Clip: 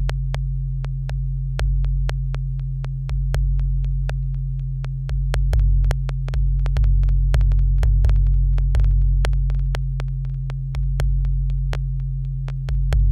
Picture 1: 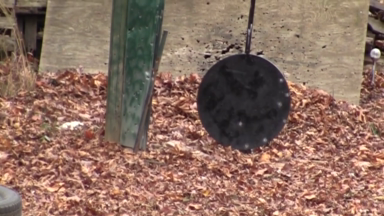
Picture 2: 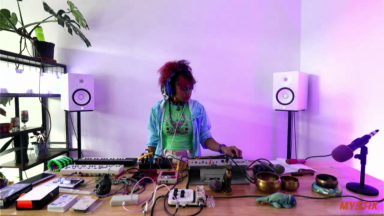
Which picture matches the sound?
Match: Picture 2